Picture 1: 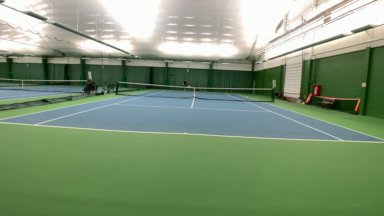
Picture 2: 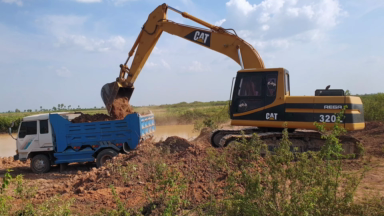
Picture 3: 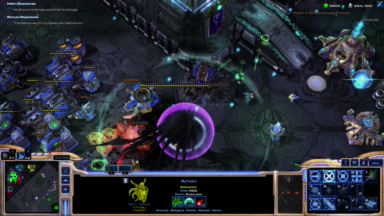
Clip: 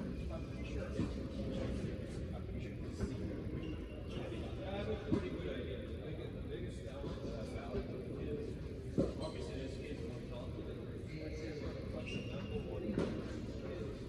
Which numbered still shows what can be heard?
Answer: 1